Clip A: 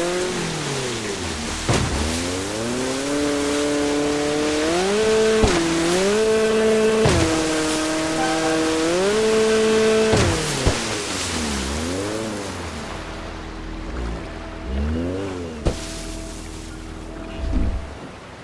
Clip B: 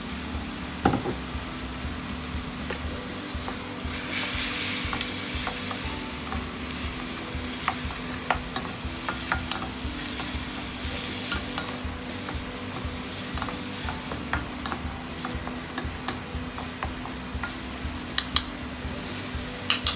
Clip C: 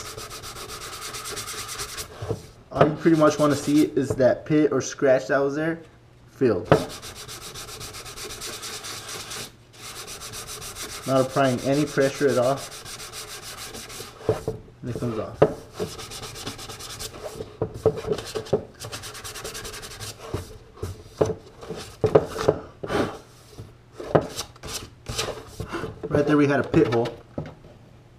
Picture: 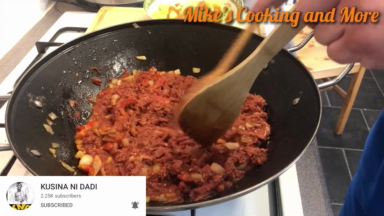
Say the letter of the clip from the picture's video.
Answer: B